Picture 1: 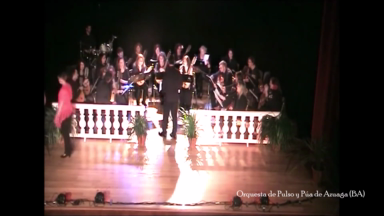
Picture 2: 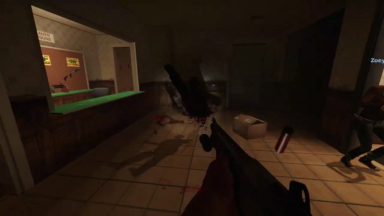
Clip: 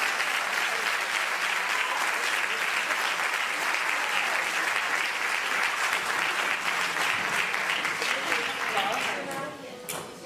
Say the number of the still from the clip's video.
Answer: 1